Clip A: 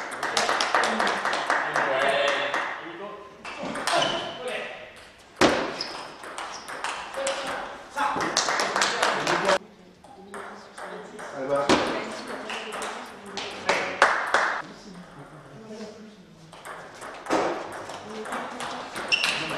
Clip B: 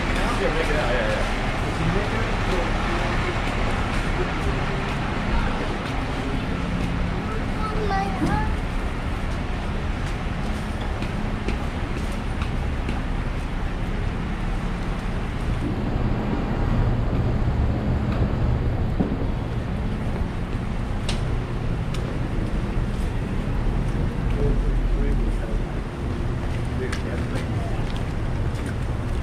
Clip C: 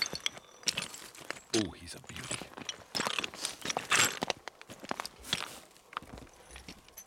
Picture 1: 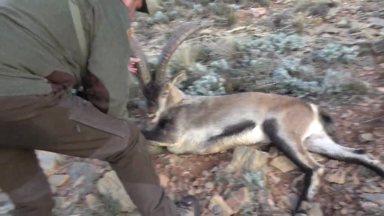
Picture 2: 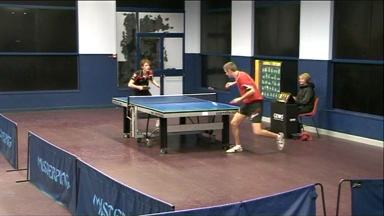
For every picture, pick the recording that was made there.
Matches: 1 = C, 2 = A